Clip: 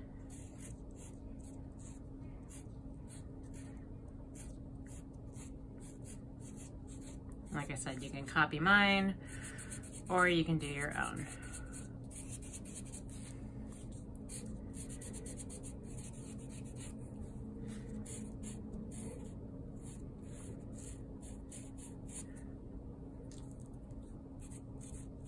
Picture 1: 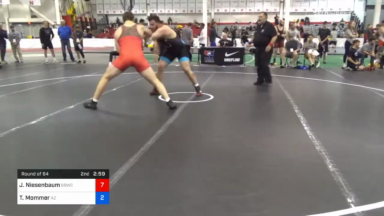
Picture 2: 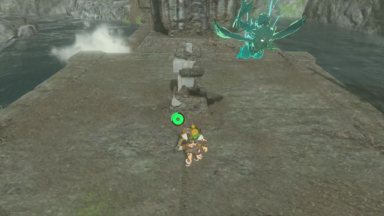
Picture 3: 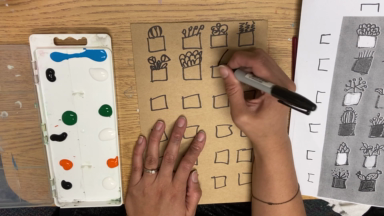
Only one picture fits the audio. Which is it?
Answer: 3